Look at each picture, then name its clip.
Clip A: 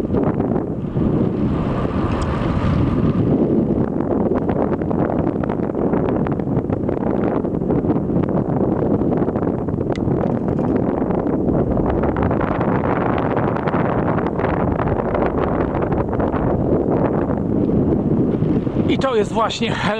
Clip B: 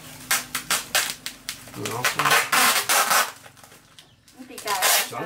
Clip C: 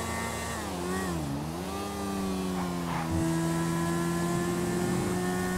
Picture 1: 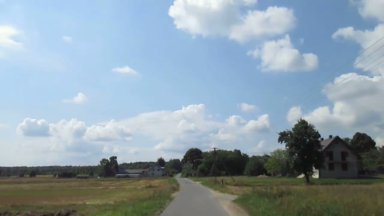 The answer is A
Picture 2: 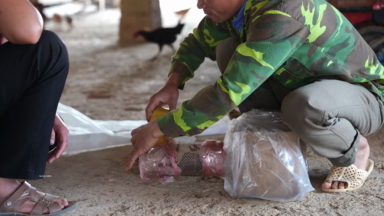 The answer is B